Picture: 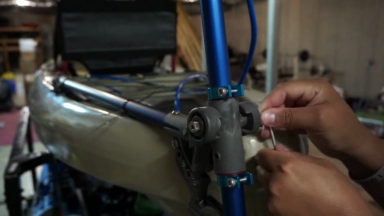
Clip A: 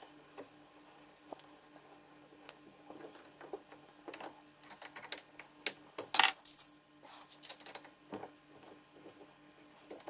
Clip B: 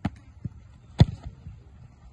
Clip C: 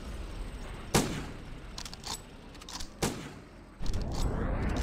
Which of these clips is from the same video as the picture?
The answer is A